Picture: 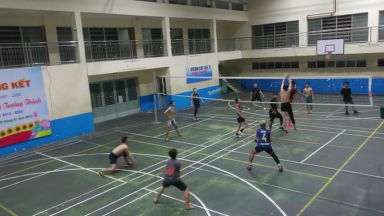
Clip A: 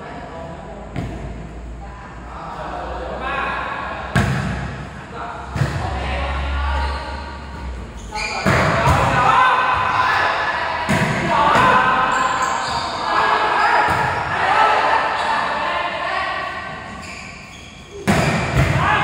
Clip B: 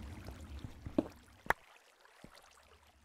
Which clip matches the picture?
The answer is A